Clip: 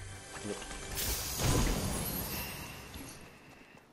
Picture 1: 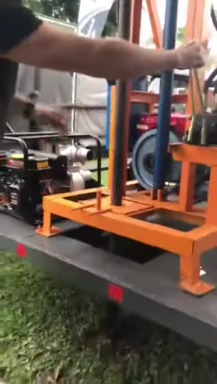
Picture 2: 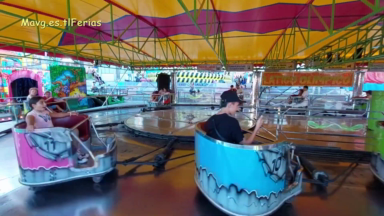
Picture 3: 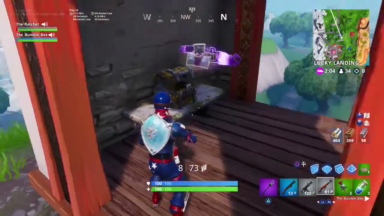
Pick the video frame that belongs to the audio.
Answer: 3